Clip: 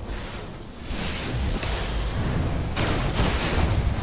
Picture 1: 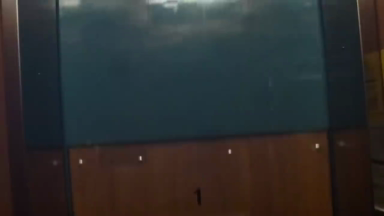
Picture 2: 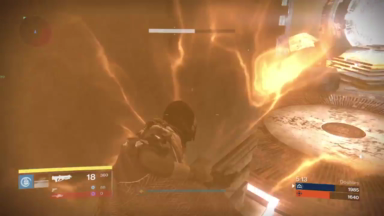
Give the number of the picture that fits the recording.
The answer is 2